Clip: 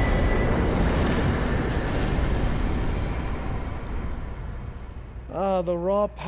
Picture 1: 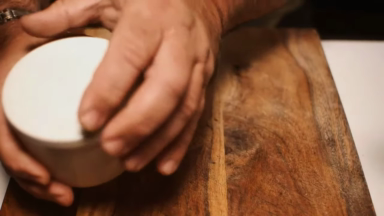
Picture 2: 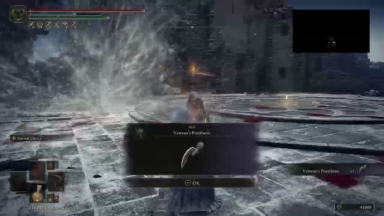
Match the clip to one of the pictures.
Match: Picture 2